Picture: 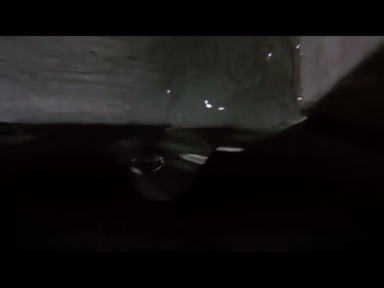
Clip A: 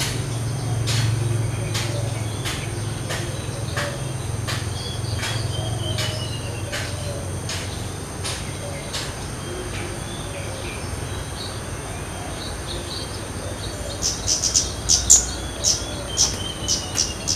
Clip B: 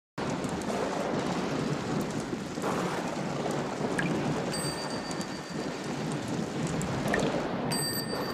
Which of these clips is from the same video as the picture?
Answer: B